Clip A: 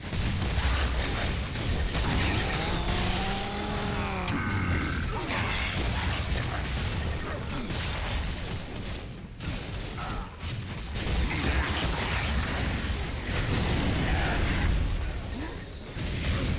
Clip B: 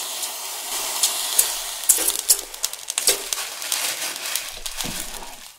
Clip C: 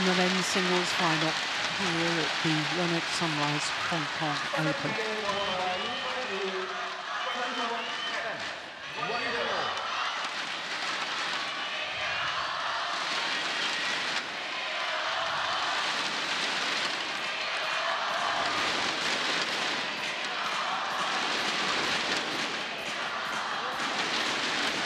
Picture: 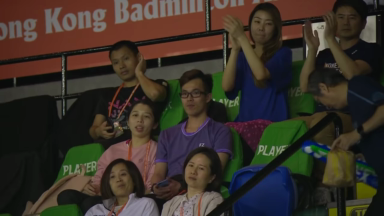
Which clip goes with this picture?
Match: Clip C